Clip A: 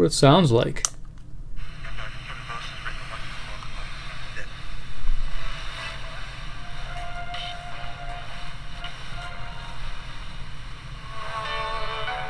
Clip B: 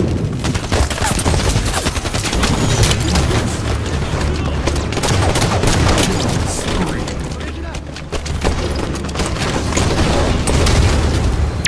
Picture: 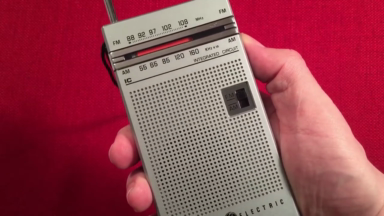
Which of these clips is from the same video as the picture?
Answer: A